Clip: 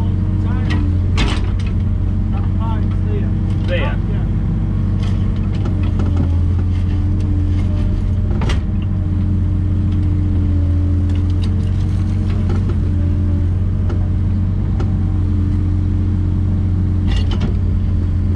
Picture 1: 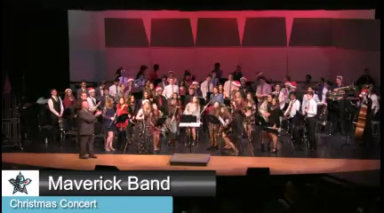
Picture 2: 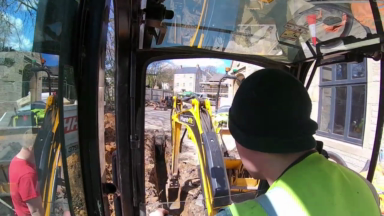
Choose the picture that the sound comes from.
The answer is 2